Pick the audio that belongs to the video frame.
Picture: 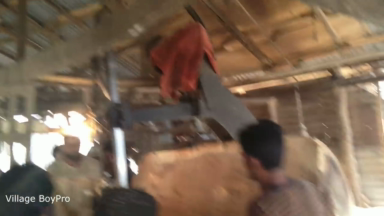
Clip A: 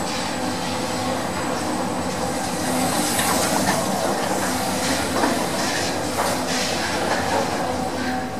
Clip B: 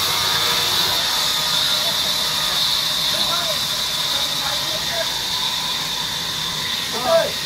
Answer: B